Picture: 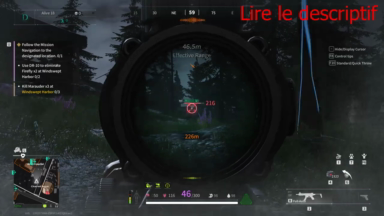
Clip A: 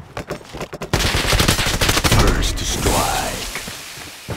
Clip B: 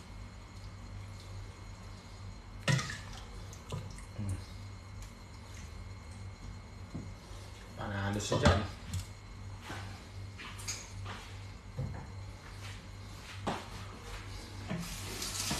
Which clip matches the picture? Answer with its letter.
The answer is A